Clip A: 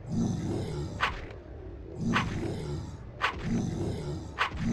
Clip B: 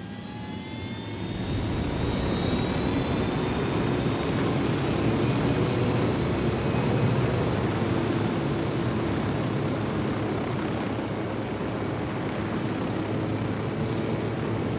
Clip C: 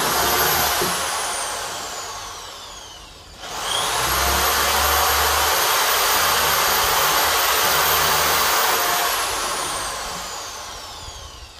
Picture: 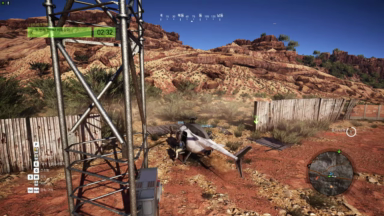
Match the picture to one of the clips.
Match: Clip B